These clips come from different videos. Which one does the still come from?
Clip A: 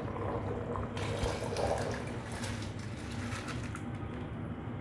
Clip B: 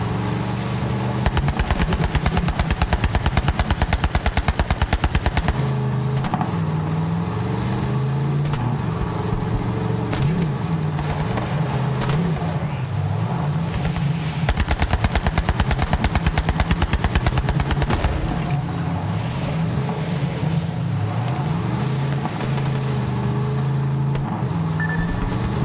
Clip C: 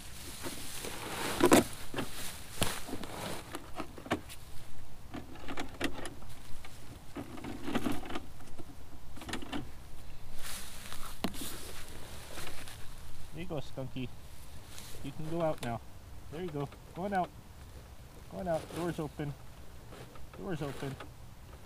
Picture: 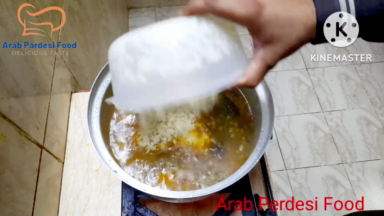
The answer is A